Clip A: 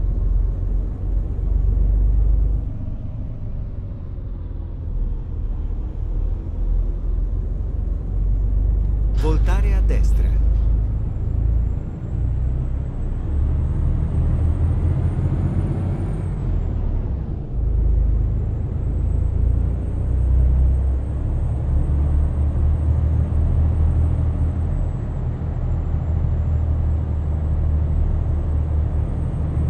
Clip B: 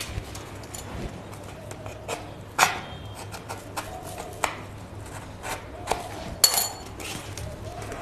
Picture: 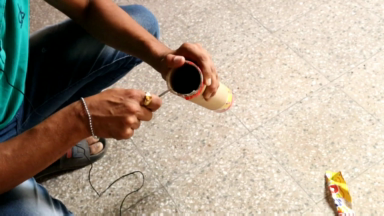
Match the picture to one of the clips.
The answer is B